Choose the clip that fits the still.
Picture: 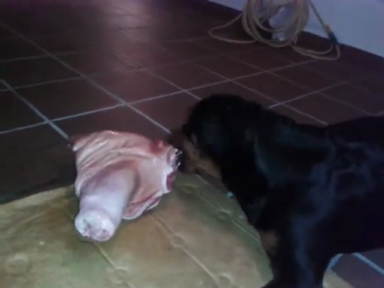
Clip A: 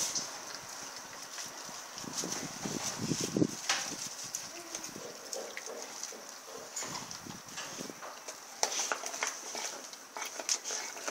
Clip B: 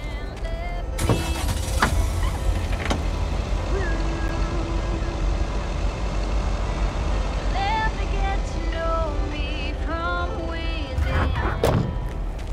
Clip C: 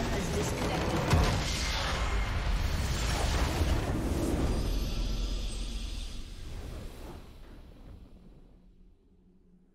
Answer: A